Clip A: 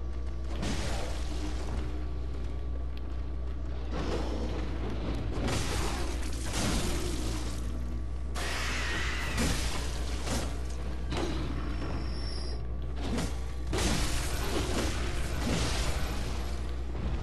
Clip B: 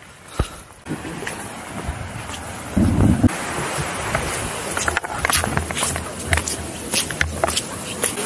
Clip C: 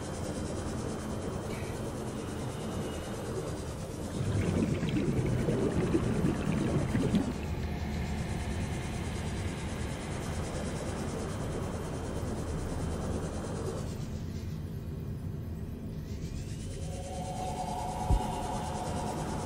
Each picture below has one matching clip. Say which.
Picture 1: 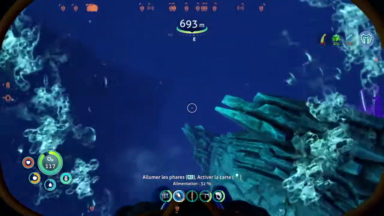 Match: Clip C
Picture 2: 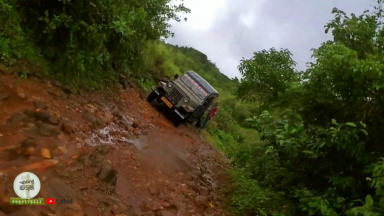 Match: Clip B